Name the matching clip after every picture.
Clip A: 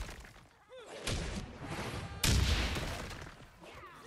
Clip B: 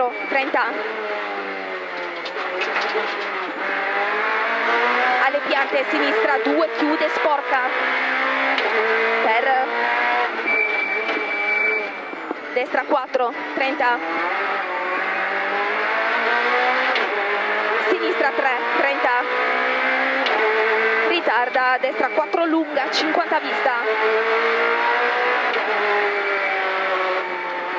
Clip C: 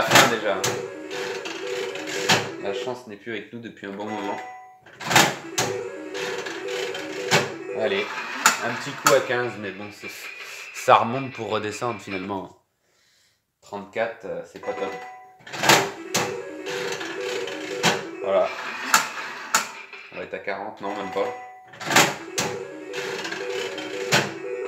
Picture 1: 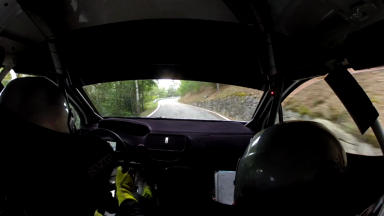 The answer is B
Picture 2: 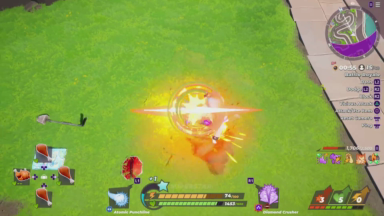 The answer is A